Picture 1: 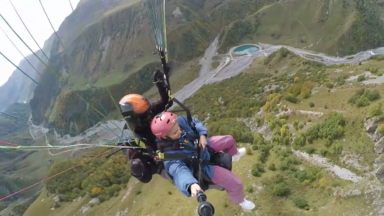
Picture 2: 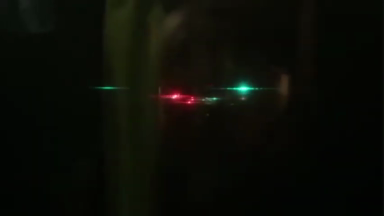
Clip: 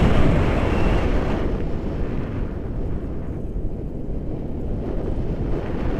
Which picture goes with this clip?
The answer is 1